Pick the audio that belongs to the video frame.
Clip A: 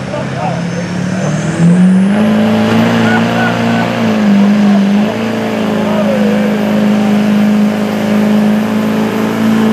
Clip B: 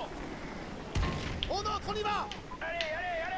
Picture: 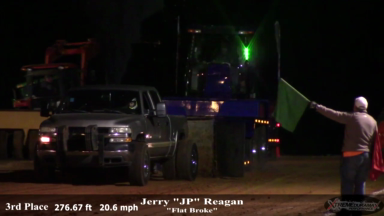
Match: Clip A